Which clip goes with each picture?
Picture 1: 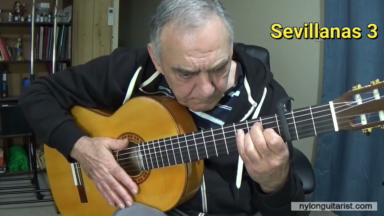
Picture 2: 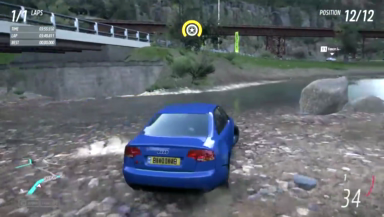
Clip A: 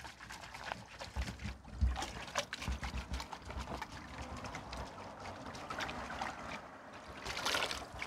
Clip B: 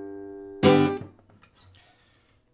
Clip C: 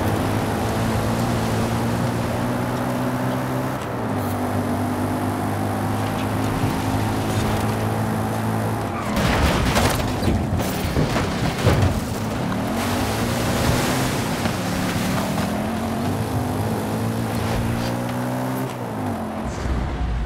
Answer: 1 B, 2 C